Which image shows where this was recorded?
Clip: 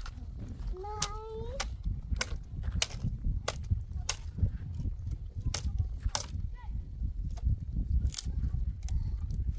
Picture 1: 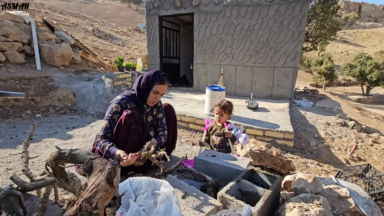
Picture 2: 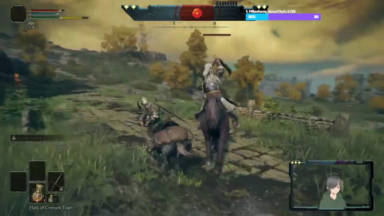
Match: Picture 1